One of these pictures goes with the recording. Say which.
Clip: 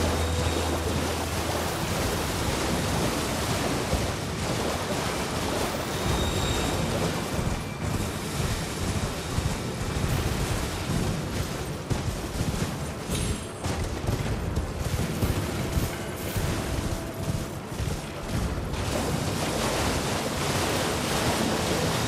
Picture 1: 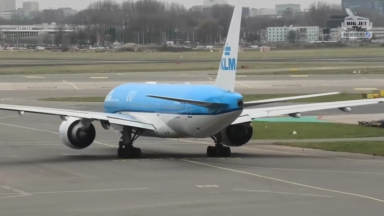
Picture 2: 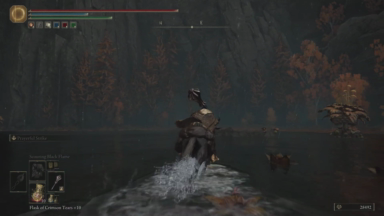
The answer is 2